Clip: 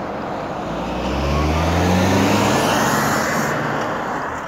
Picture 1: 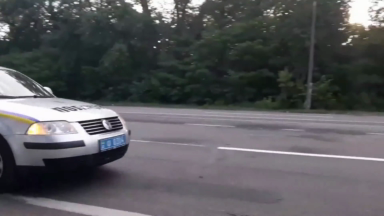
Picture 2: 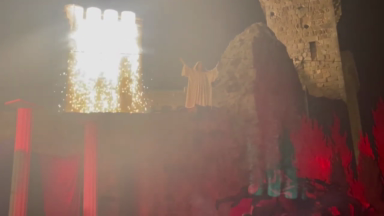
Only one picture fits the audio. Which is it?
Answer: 1